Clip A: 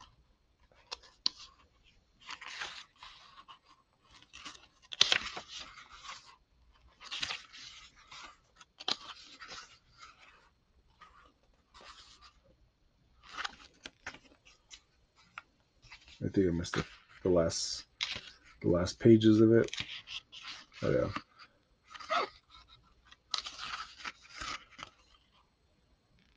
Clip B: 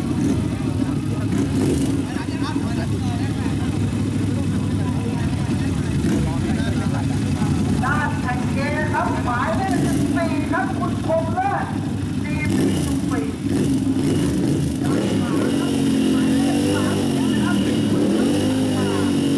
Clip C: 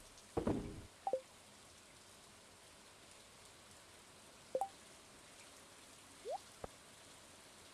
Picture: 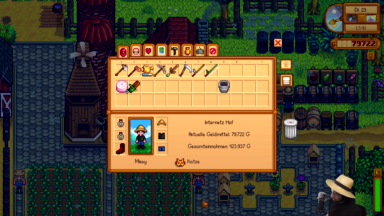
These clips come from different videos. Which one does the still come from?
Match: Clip C